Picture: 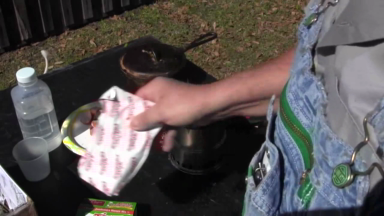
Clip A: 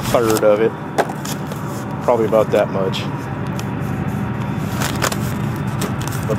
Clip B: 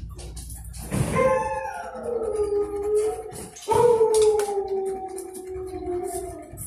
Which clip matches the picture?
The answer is A